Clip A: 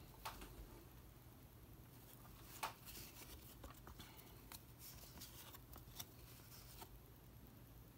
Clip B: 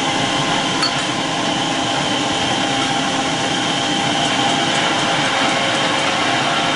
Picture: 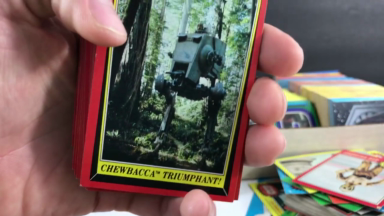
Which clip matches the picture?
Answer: A